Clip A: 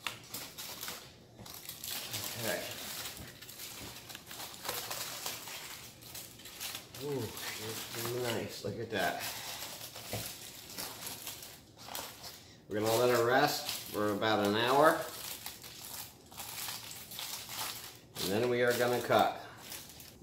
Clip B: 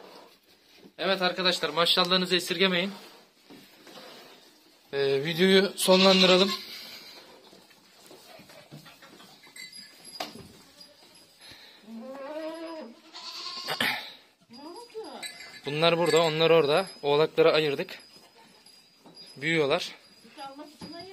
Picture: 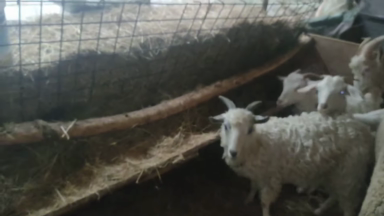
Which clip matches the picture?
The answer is B